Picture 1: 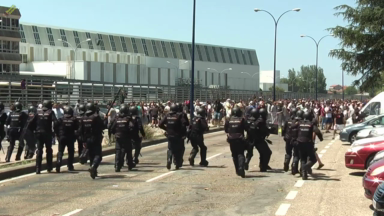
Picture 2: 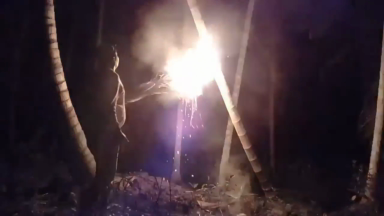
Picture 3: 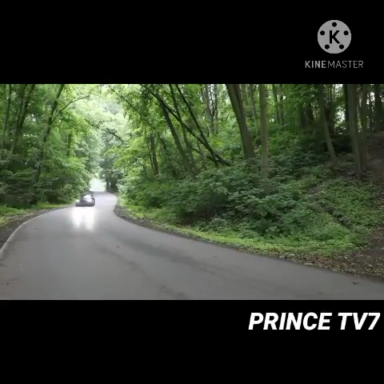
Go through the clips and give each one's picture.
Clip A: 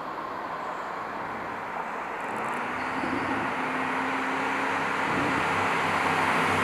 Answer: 3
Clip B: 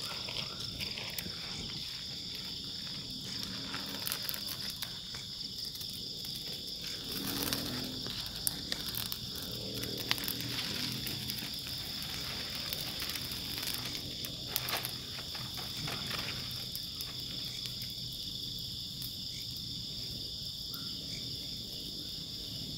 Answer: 2